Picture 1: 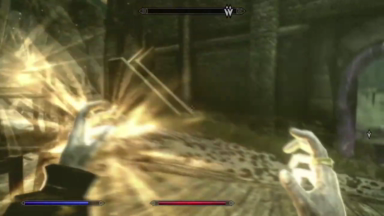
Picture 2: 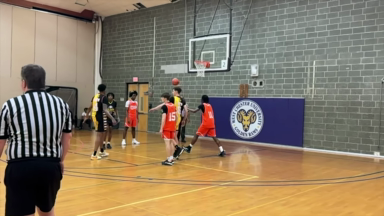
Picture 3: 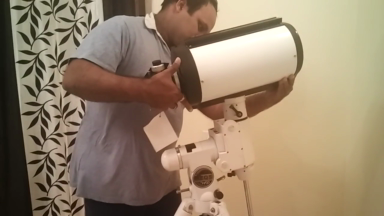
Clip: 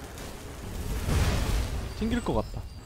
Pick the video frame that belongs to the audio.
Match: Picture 1